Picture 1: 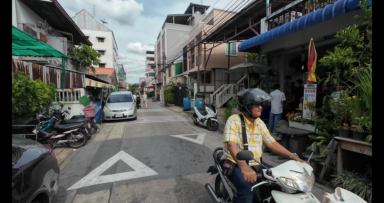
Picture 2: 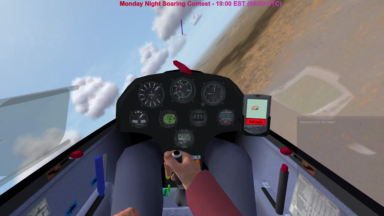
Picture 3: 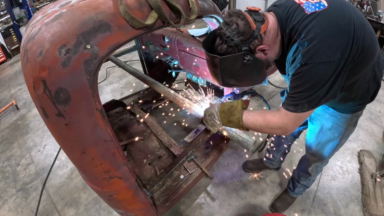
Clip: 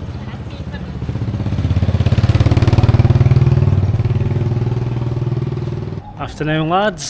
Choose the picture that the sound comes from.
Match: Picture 1